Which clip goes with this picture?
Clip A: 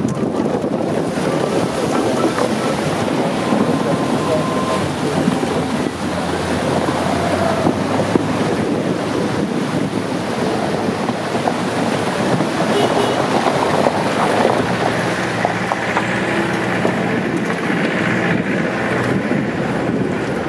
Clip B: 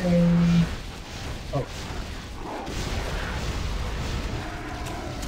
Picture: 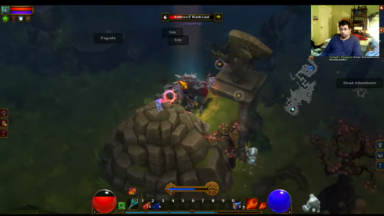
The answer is B